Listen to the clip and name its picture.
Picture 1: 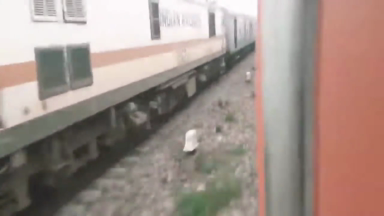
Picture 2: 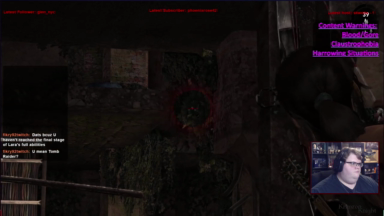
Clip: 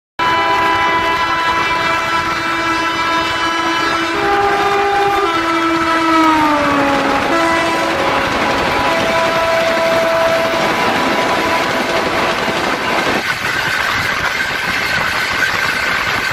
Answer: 1